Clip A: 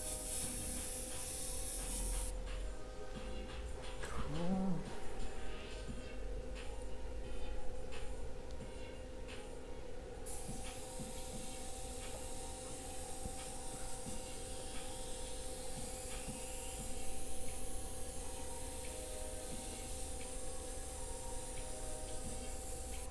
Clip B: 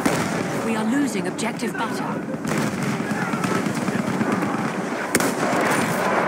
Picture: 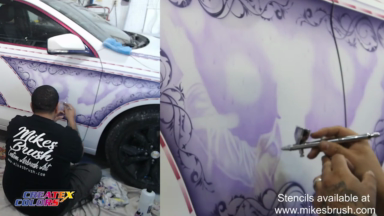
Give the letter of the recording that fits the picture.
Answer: A